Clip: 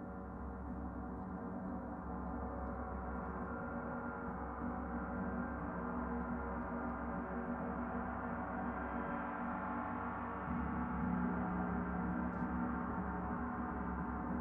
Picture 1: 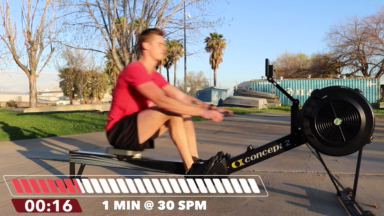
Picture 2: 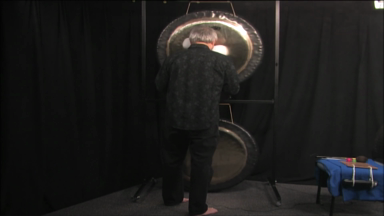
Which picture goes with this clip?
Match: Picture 2